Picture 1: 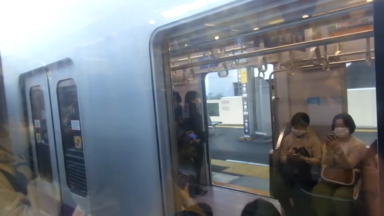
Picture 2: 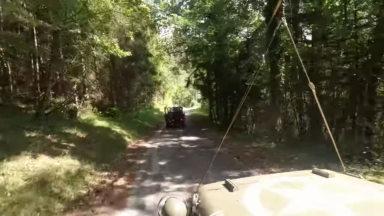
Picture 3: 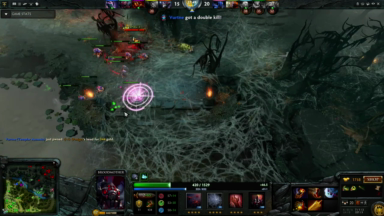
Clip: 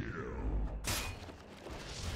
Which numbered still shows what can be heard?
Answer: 3